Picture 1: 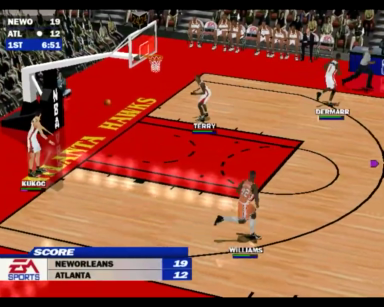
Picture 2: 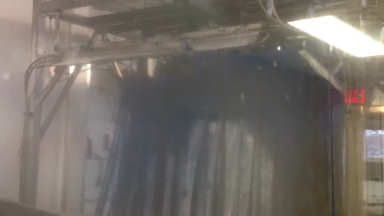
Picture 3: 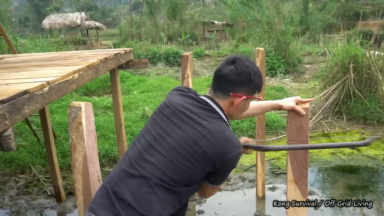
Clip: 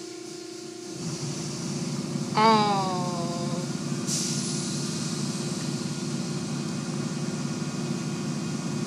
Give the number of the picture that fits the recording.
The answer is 2